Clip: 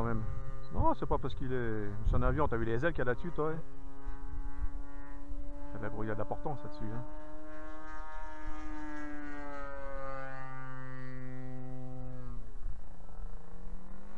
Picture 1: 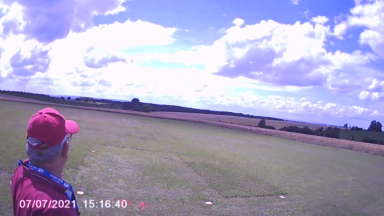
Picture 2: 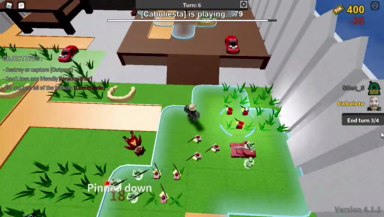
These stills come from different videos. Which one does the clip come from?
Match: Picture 1